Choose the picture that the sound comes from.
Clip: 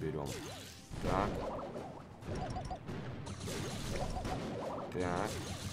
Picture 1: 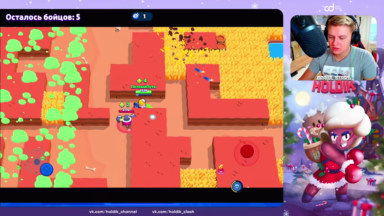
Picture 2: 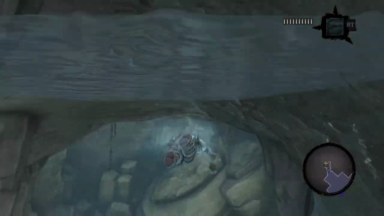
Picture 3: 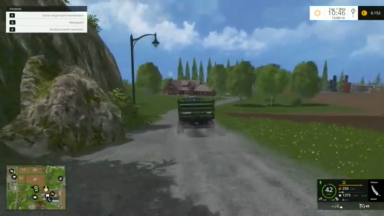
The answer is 1